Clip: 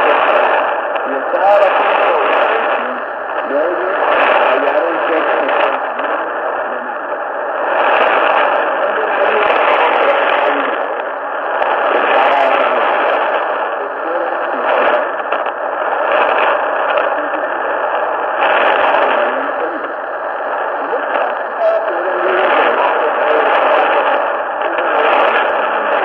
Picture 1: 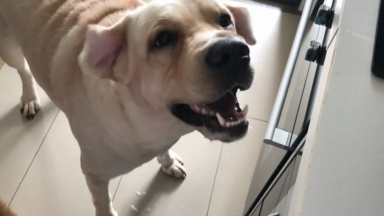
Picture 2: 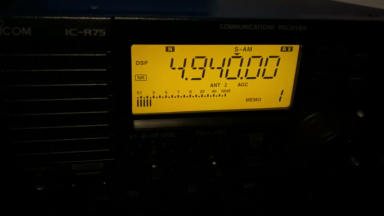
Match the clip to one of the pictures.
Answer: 2